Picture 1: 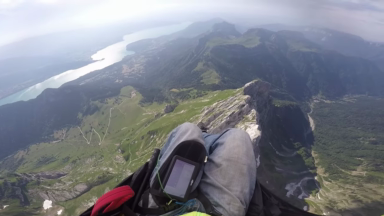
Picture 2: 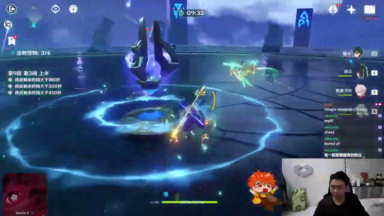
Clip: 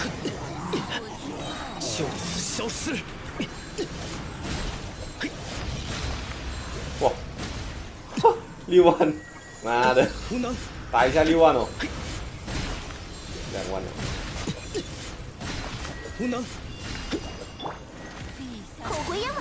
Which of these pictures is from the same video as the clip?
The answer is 2